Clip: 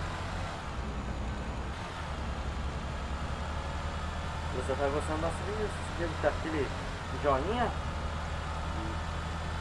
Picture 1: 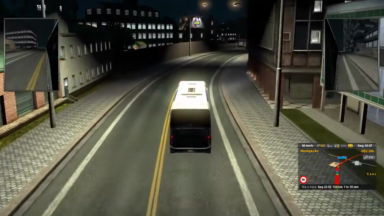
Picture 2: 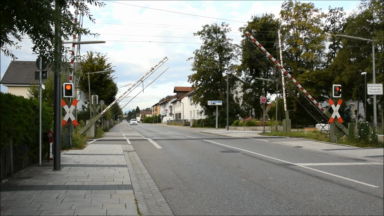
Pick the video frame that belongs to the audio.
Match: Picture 1